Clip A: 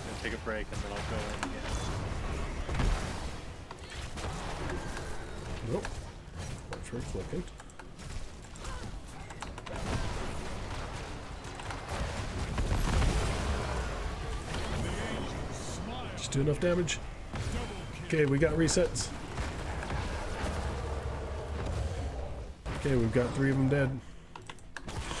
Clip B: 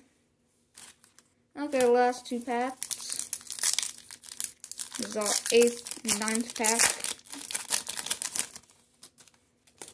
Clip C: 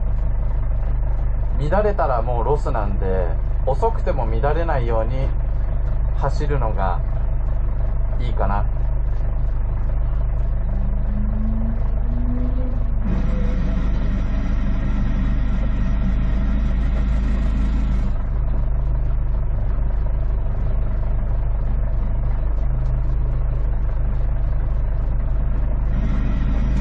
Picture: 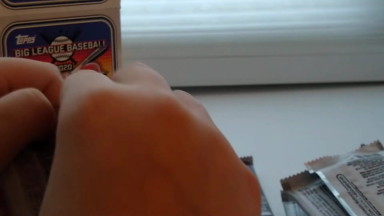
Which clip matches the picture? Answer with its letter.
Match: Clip B